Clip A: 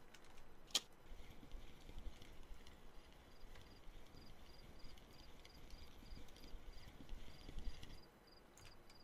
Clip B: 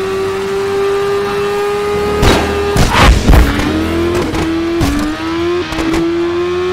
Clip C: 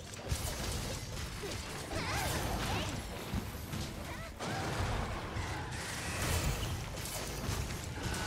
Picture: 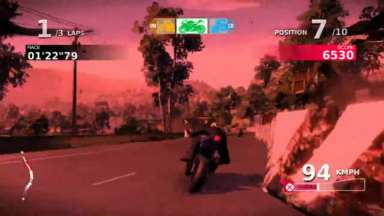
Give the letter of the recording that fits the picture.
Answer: B